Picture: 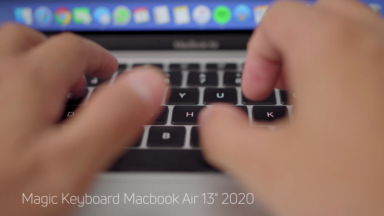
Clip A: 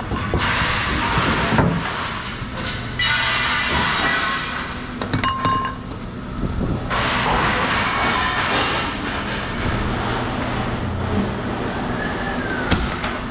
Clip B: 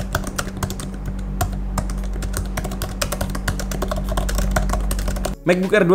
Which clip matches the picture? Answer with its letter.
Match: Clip B